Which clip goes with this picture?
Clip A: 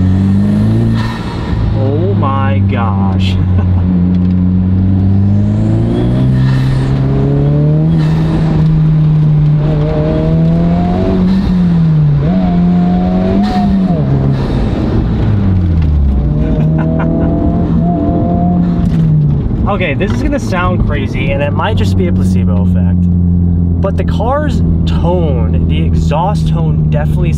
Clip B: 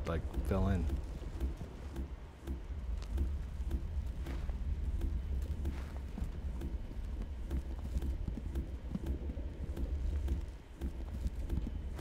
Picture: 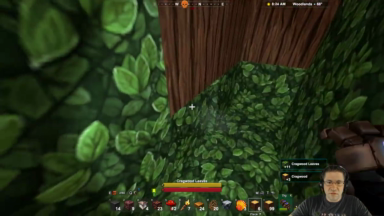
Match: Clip B